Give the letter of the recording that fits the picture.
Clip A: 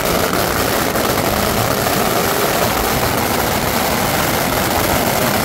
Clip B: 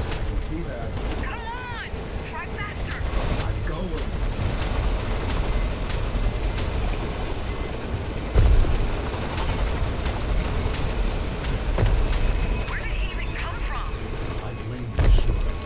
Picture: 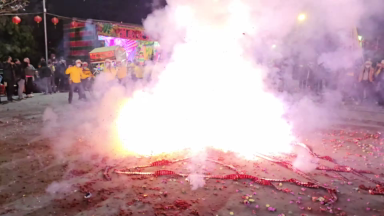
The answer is A